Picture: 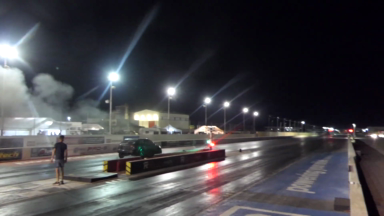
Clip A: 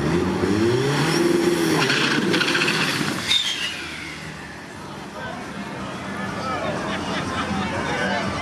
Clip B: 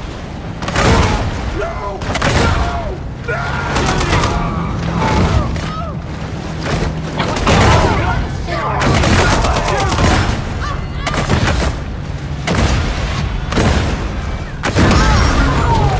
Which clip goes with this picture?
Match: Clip A